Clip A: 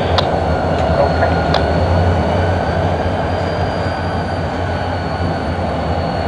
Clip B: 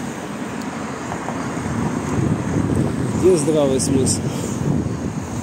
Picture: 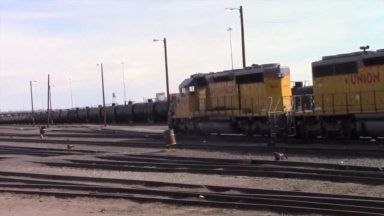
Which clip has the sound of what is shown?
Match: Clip A